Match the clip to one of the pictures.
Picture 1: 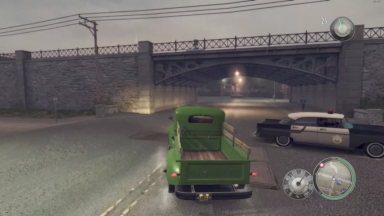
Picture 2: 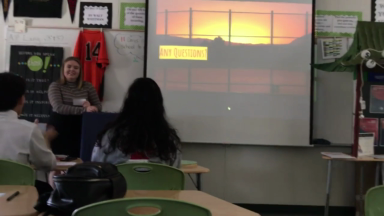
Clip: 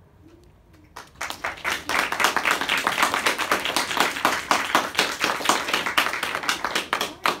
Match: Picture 2